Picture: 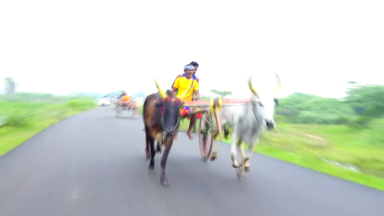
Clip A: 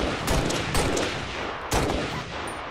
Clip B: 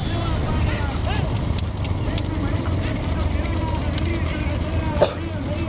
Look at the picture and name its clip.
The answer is B